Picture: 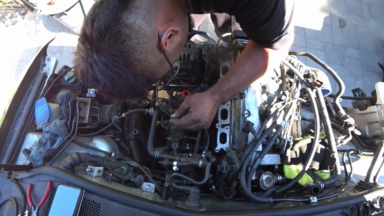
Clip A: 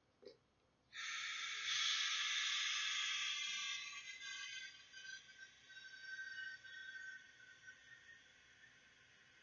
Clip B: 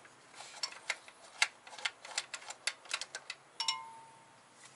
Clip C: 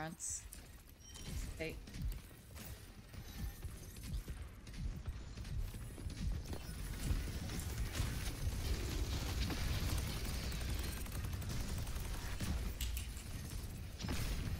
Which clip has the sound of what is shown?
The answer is B